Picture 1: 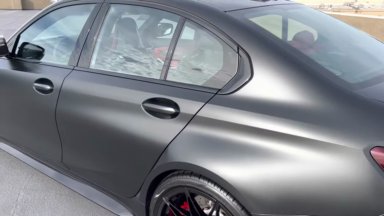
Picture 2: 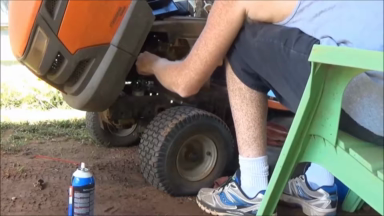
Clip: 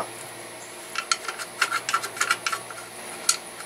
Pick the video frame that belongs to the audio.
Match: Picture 2